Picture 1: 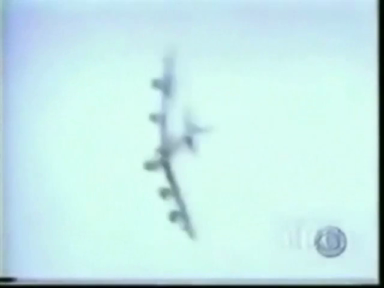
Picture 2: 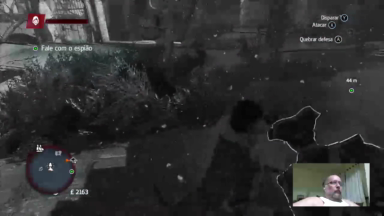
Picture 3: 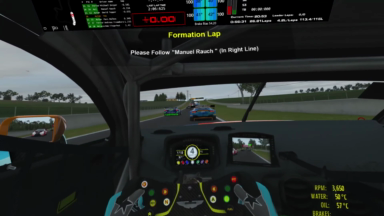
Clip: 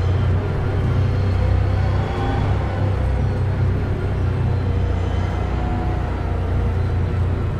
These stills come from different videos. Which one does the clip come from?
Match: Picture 3